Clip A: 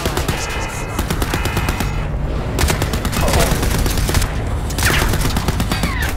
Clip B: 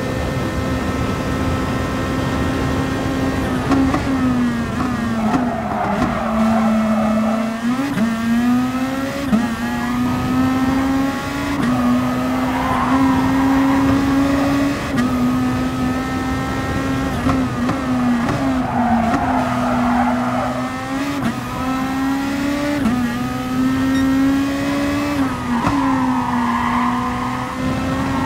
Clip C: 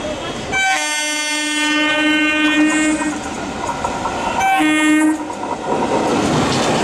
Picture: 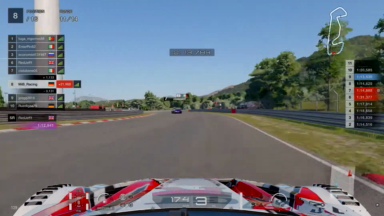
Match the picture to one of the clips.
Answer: B